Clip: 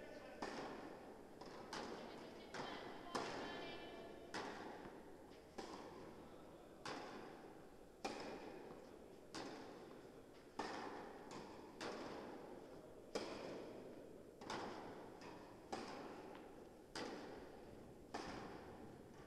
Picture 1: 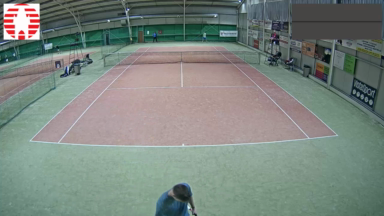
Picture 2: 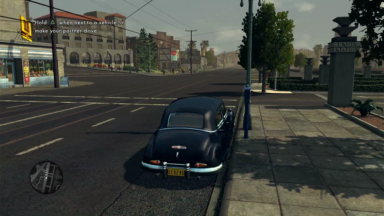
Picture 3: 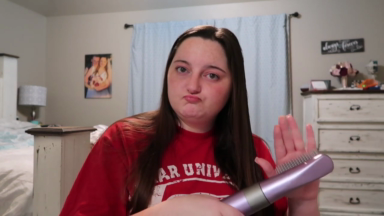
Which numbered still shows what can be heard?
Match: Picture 1